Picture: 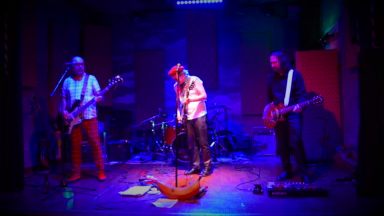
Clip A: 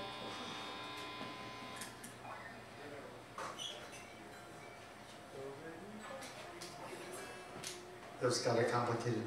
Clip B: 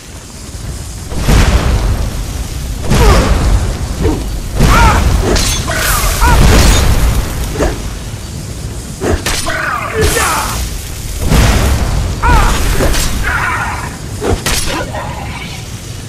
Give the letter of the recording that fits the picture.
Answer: A